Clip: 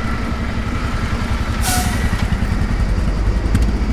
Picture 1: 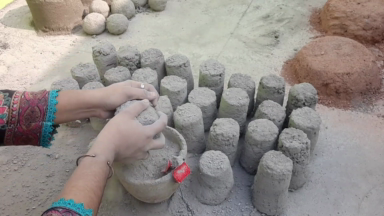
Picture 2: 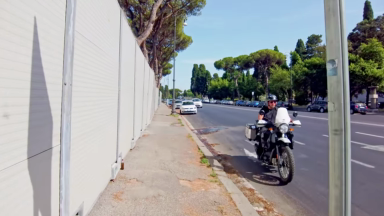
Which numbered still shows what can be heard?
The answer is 2